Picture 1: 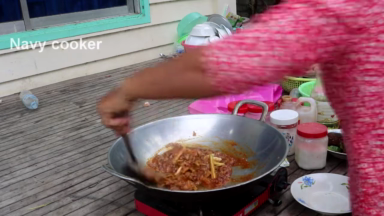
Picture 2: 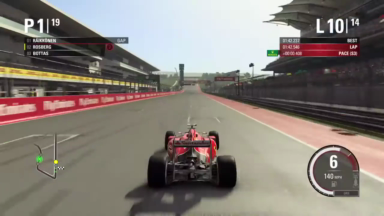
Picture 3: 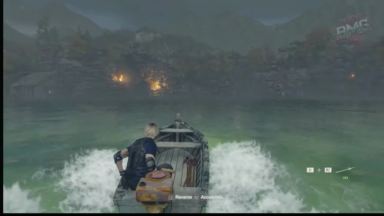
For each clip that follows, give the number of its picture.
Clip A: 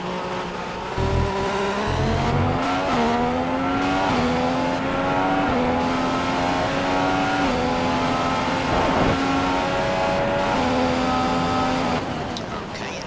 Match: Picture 2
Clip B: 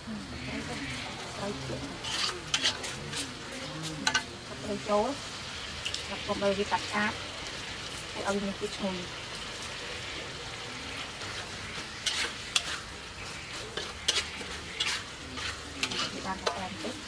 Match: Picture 1